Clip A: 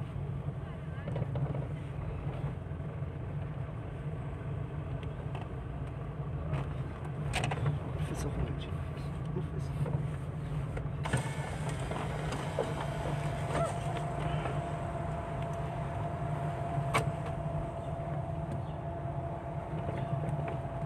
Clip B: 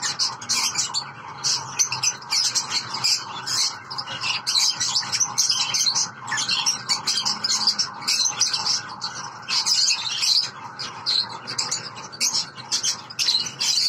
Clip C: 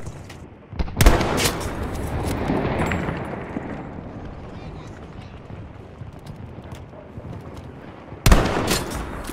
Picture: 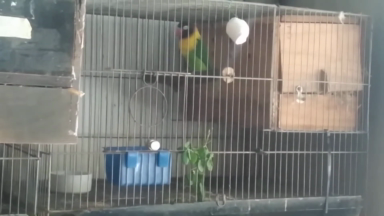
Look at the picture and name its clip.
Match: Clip B